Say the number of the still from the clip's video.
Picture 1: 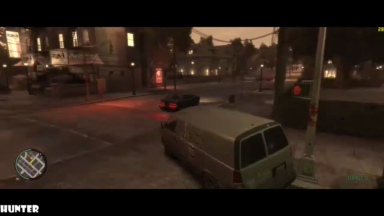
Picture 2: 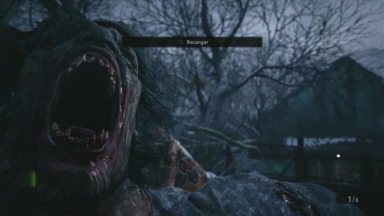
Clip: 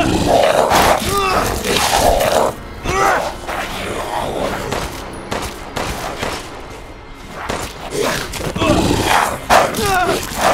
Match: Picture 2